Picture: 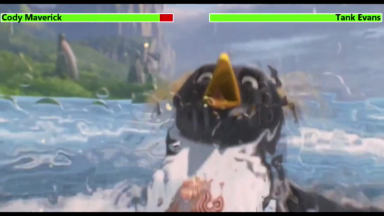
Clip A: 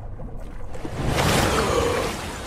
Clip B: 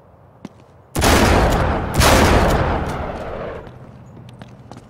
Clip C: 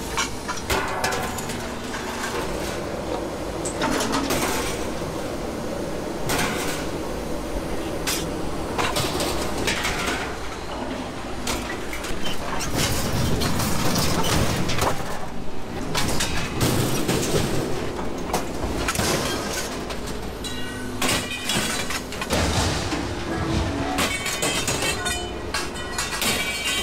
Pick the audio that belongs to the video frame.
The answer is A